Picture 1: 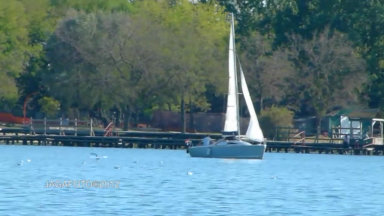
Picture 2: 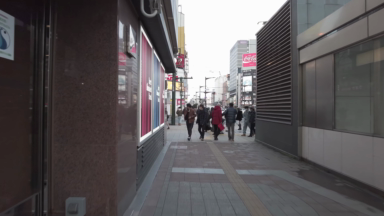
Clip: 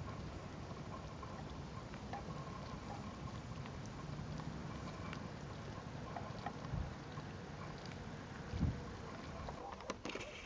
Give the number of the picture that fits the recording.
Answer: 1